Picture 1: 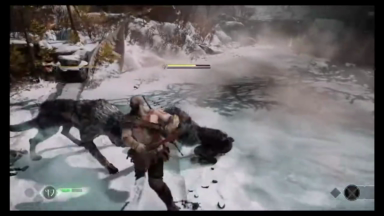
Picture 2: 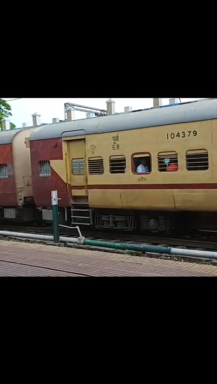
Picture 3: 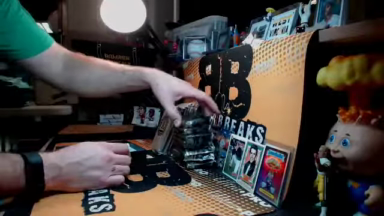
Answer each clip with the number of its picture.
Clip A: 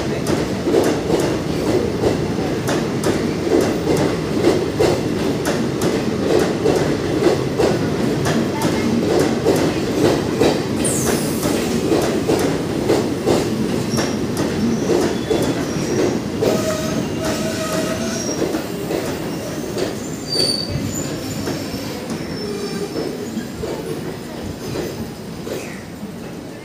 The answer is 2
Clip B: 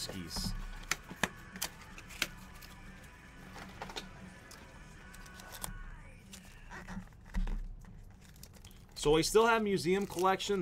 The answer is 3